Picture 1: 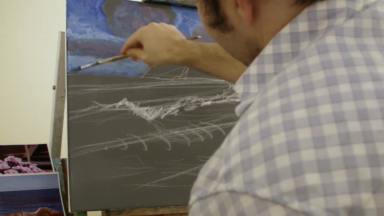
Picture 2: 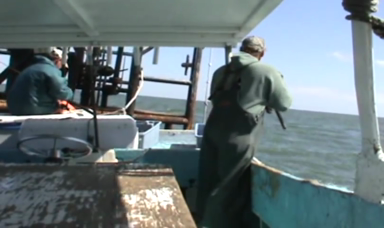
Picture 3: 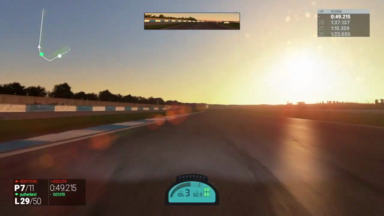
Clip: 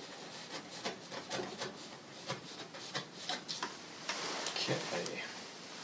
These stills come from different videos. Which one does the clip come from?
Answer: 1